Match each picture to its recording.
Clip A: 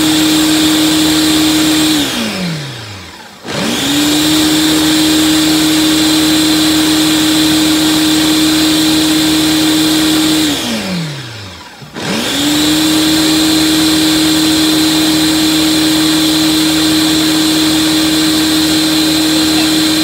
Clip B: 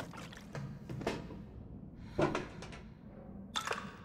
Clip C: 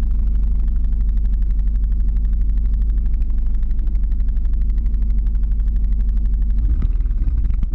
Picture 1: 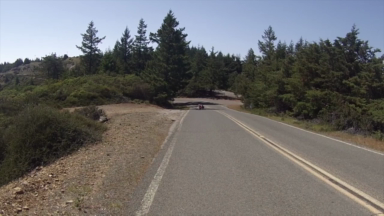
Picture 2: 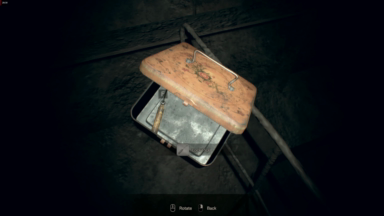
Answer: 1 C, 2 B